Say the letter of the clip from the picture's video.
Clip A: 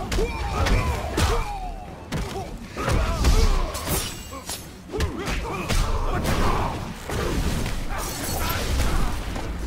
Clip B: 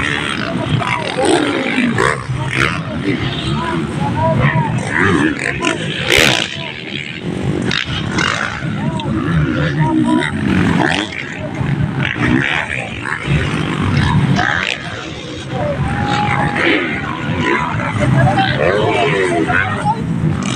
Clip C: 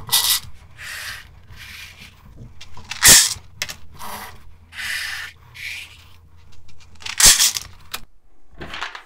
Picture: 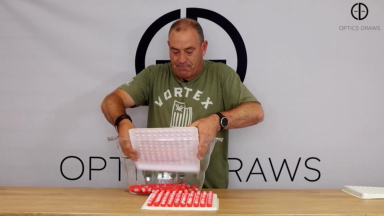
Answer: C